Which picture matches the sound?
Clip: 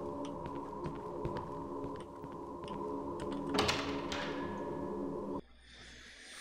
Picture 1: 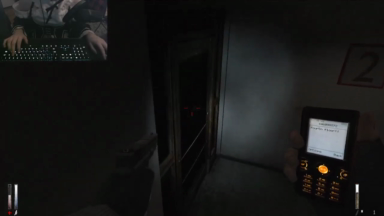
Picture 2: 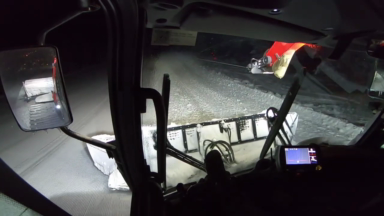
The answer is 1